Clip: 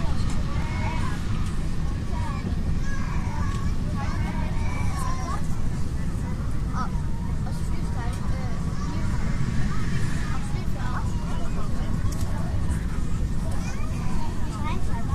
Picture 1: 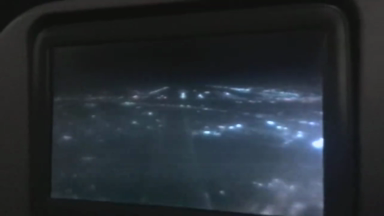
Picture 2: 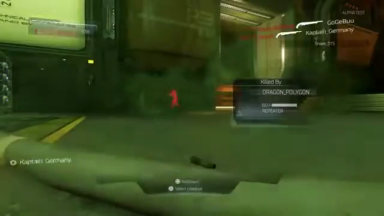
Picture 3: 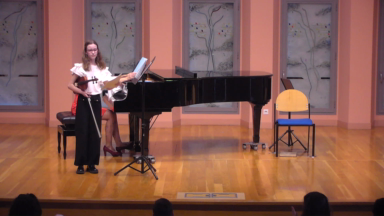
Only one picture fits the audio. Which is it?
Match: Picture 1